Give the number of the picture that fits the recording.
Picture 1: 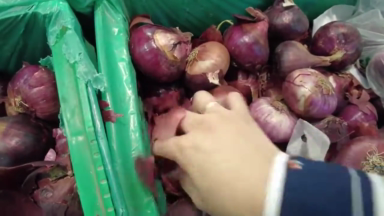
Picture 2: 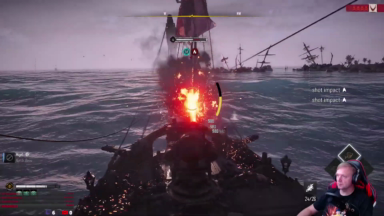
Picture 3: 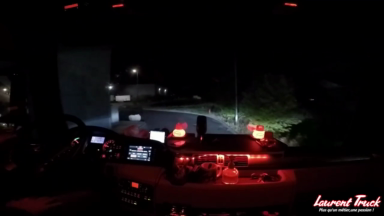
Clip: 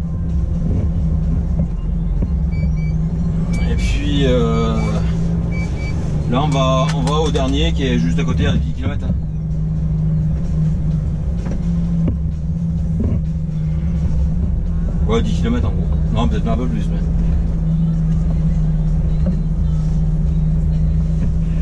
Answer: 3